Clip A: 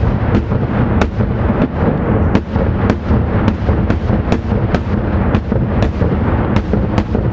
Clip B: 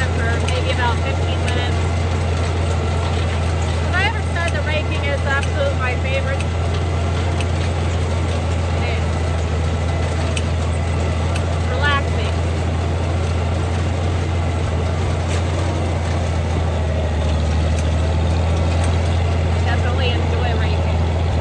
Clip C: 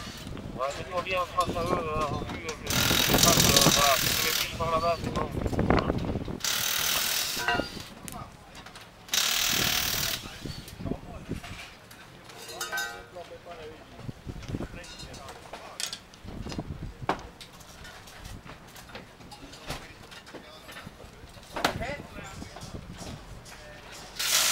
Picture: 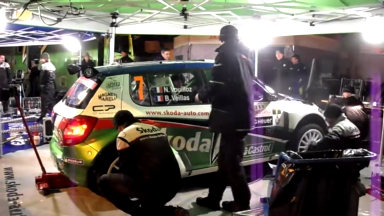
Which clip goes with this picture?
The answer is C